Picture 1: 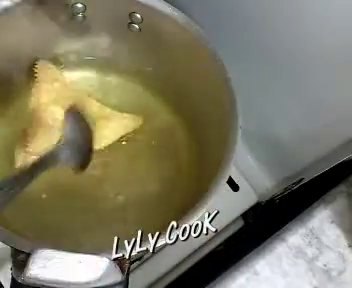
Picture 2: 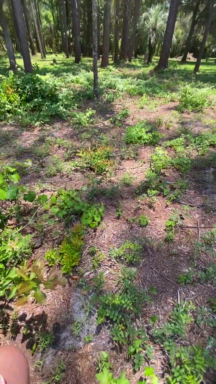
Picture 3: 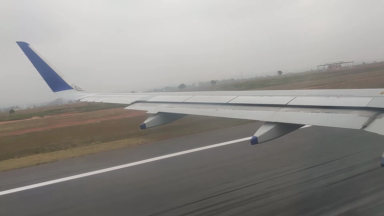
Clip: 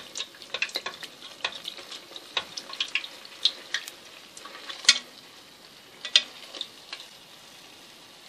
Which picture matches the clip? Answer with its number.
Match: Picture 1